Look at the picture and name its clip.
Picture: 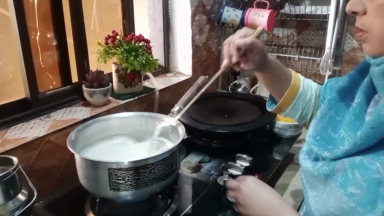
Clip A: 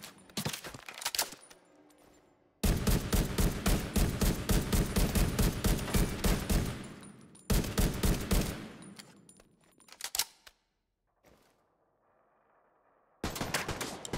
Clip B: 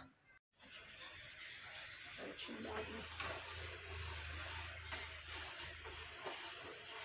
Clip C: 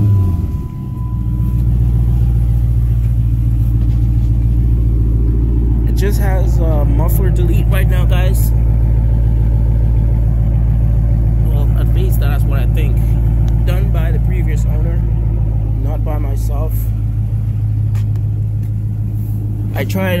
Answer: B